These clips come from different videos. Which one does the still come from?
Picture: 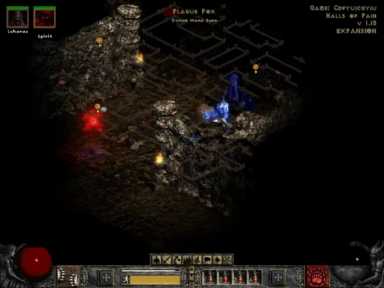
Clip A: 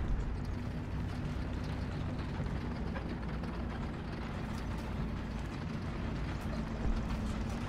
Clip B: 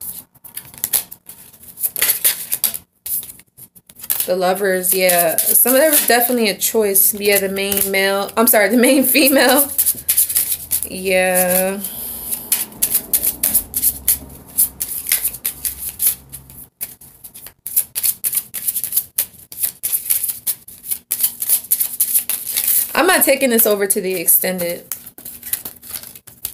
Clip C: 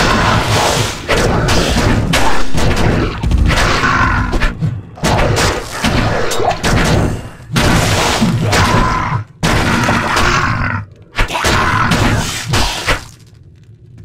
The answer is C